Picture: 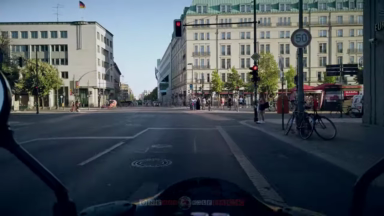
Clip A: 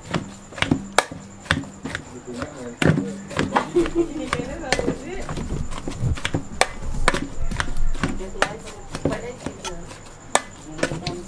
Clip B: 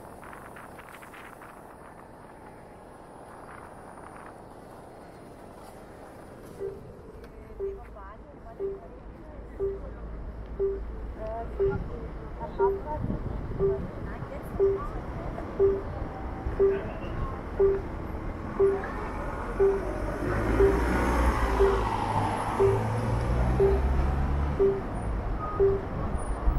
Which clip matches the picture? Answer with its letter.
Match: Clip B